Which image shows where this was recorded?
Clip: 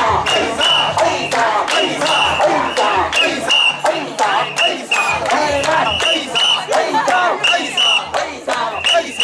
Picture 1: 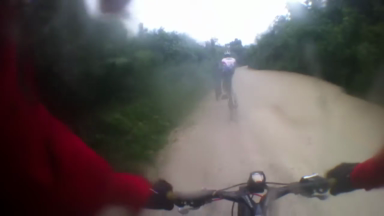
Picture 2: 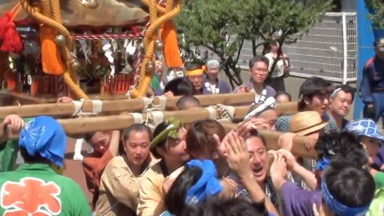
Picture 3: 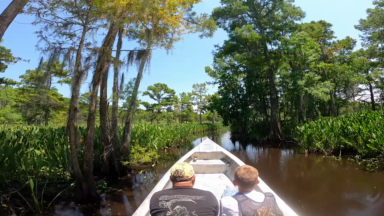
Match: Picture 2